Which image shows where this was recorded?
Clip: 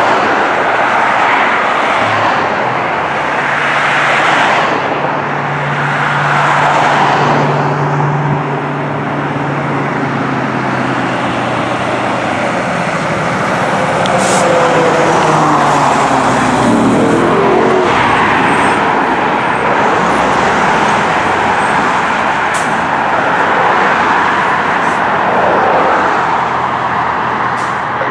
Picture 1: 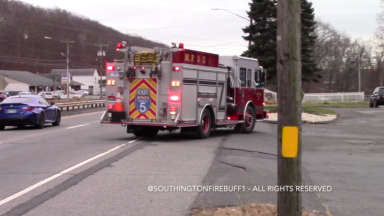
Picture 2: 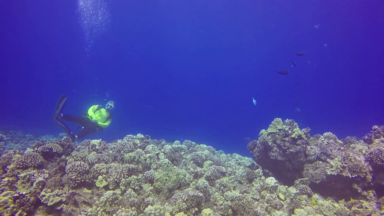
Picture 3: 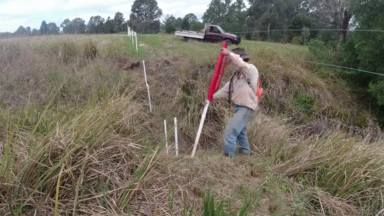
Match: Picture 1